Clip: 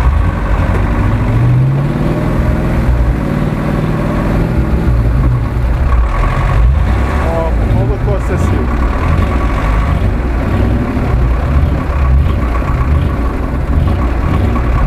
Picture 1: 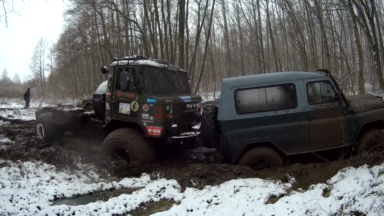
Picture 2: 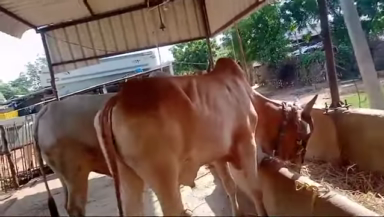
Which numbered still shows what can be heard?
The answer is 1